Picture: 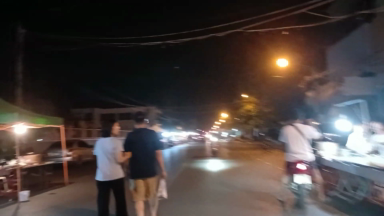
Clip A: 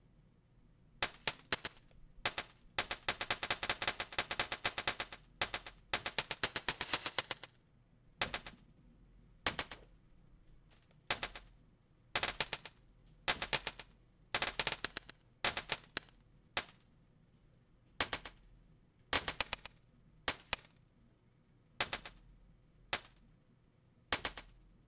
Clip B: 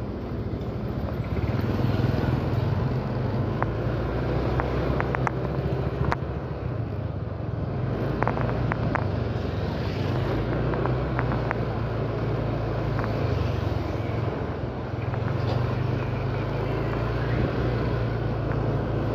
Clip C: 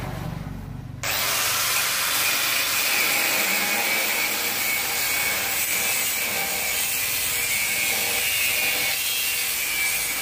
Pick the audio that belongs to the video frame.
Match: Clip B